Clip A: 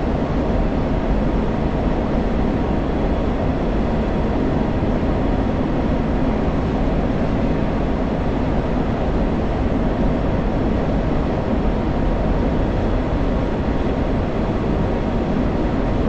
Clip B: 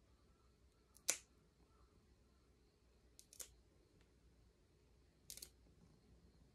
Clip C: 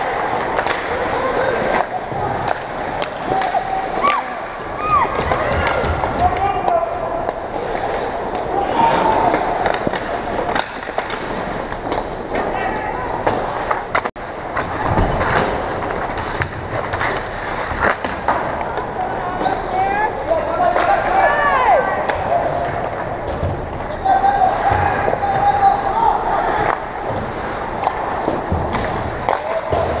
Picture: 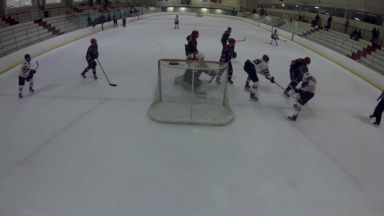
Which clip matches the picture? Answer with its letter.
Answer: C